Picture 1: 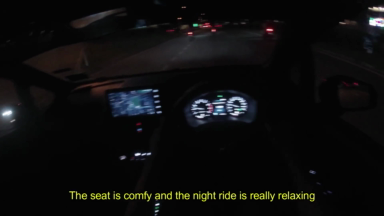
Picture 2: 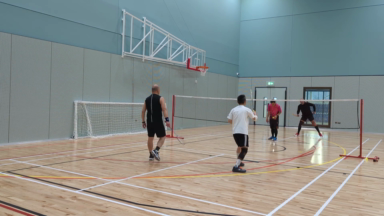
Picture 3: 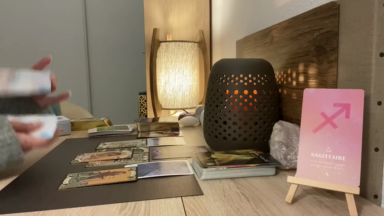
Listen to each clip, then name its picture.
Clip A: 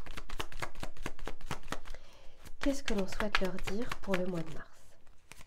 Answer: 3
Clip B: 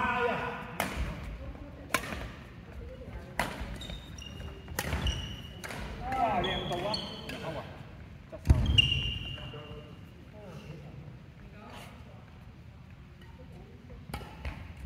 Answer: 2